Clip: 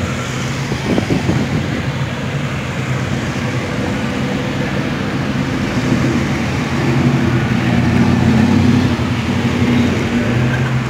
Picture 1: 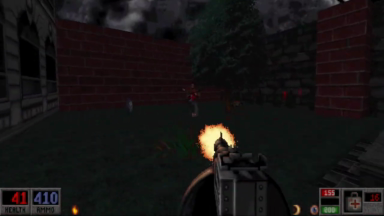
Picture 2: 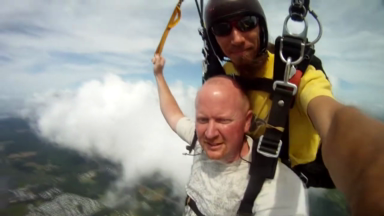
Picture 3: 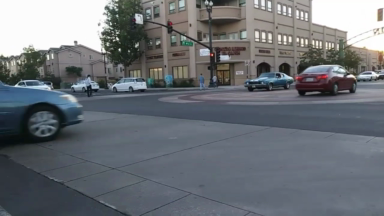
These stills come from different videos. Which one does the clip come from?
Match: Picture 3